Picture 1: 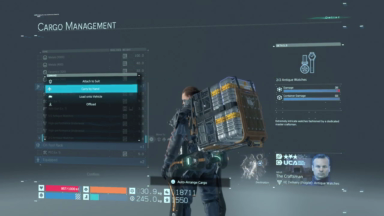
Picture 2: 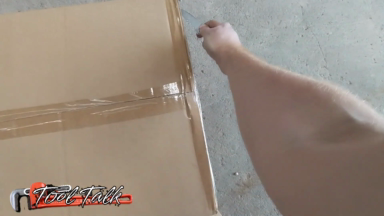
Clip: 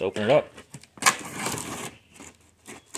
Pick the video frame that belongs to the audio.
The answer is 2